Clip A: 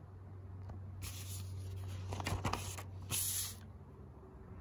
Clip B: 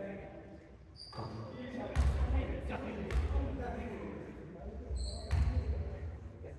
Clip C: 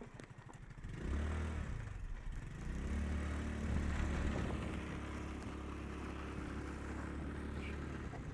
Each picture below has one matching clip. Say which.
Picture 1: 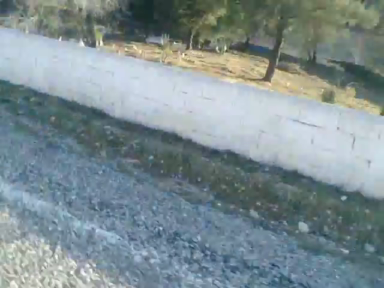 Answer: C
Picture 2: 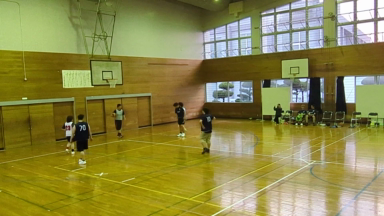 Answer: B